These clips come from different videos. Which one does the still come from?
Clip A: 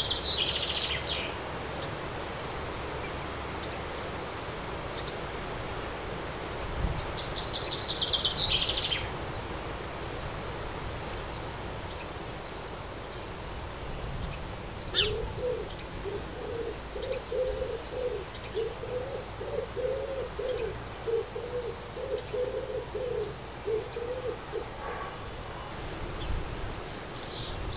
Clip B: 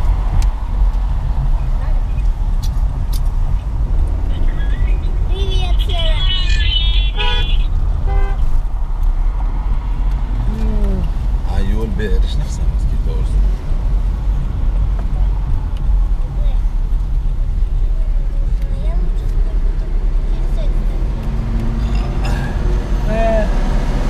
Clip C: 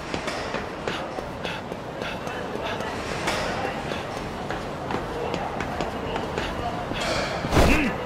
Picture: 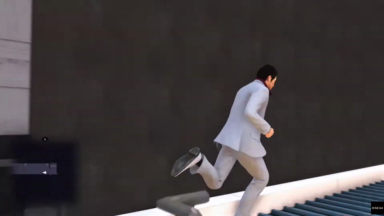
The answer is C